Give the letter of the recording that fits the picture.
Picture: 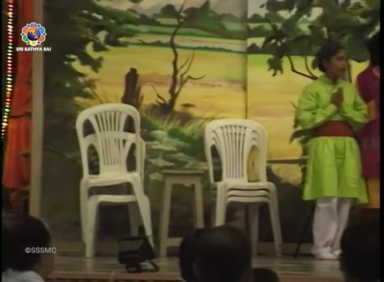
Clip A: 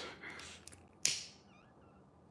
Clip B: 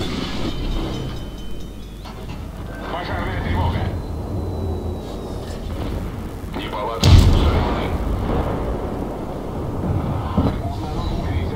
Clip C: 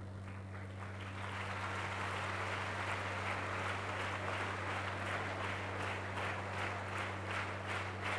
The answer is C